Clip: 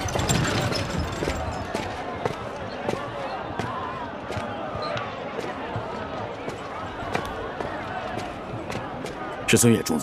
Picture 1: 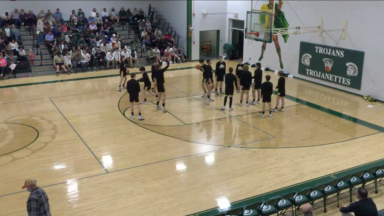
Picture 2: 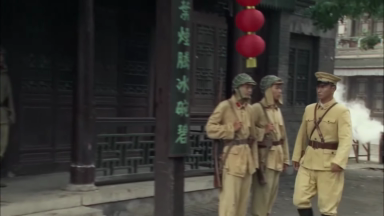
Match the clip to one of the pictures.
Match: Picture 2